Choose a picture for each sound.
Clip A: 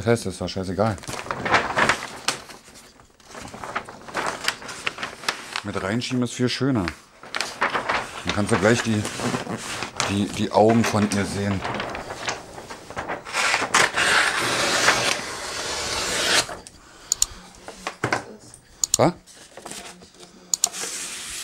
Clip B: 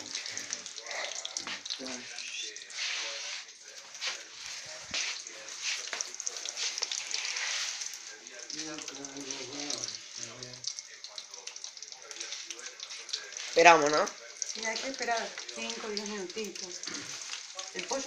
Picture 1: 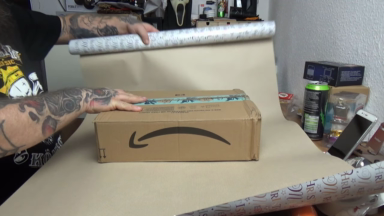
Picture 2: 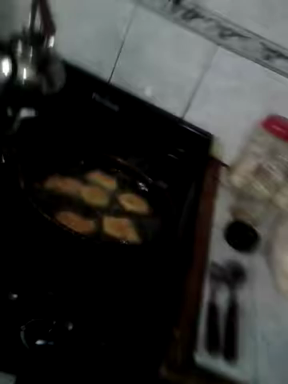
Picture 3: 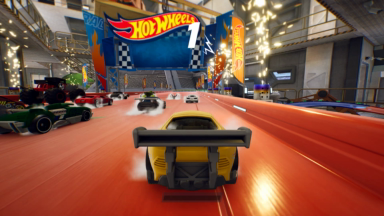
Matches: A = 1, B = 2